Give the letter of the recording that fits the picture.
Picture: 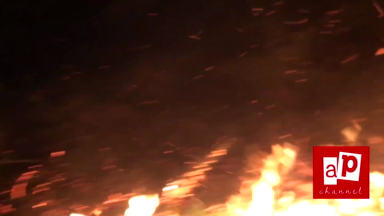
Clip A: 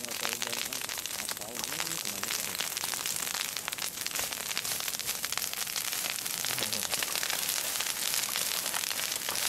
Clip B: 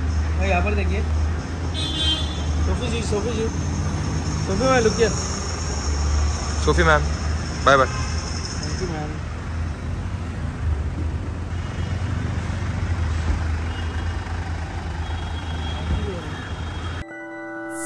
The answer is A